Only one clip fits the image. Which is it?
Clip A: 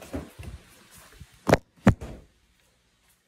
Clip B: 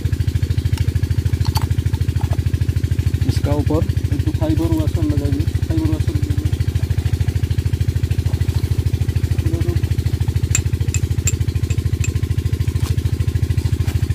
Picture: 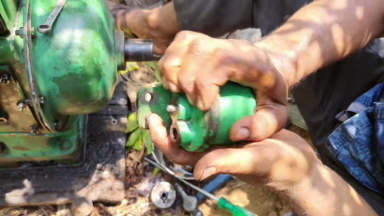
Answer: B